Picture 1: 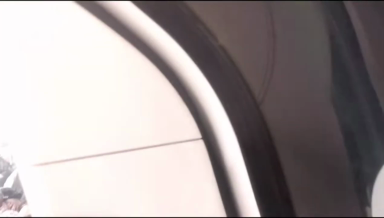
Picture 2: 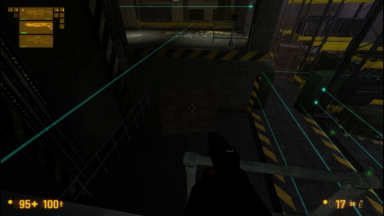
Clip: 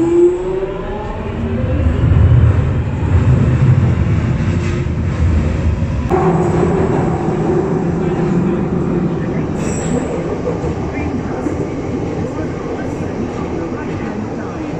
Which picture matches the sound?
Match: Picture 1